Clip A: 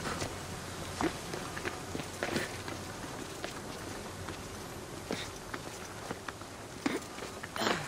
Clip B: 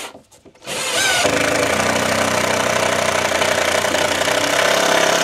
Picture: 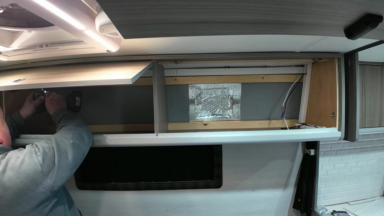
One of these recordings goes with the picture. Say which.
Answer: B